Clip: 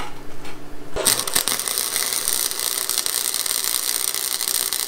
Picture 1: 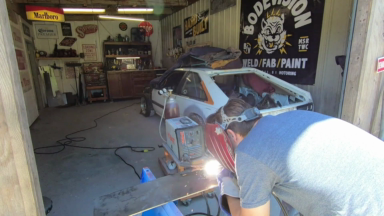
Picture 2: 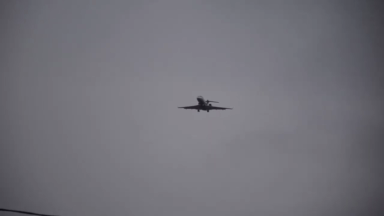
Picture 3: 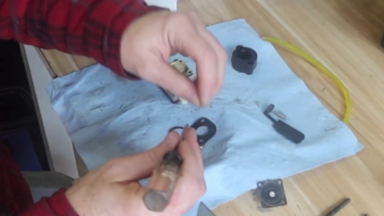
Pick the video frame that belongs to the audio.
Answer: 1